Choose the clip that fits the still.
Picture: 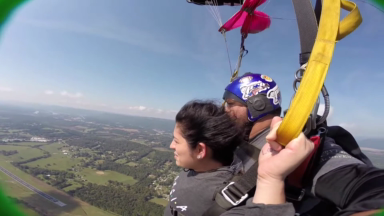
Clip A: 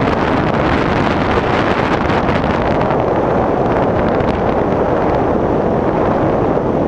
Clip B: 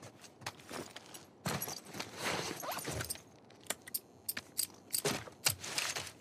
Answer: A